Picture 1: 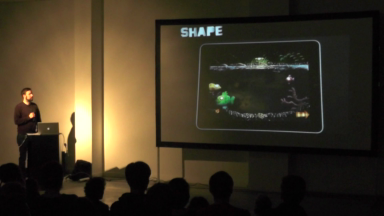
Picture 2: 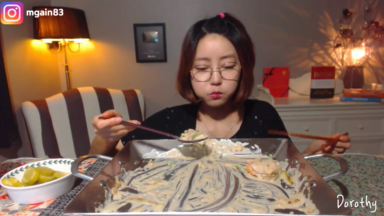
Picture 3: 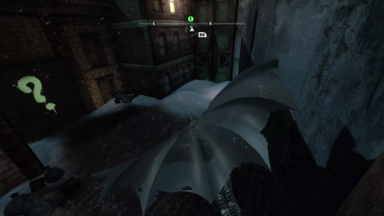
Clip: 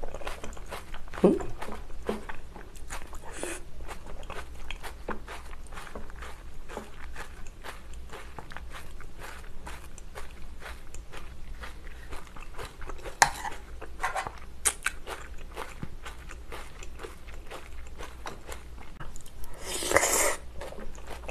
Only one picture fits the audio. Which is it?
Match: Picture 2